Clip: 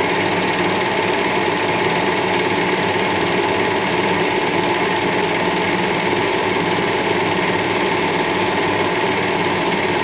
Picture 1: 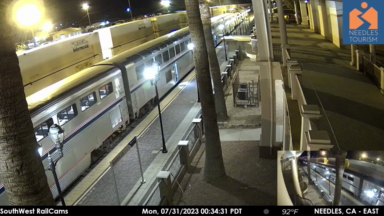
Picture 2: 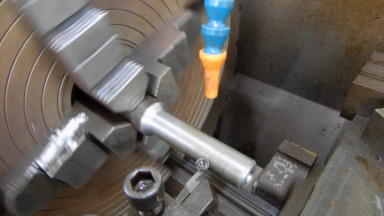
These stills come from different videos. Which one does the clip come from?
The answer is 2